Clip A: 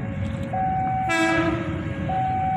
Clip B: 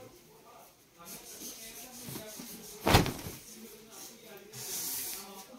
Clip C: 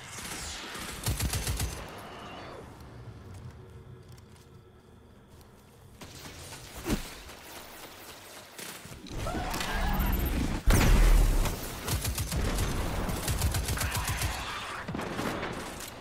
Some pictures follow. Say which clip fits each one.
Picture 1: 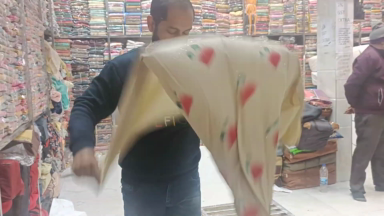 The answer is B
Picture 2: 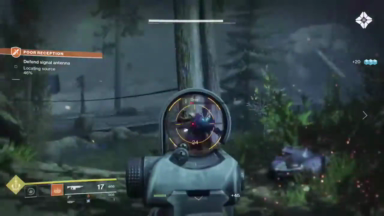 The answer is C